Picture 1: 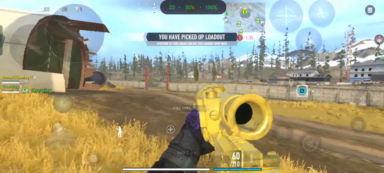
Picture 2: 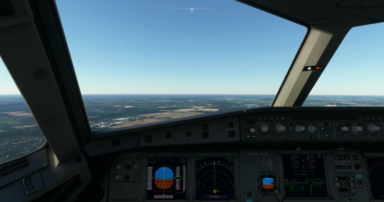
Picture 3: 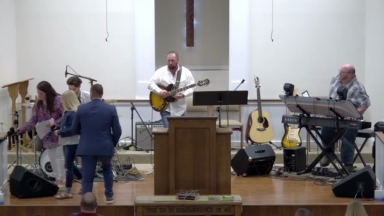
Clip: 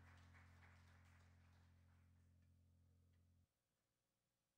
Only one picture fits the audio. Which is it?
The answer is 3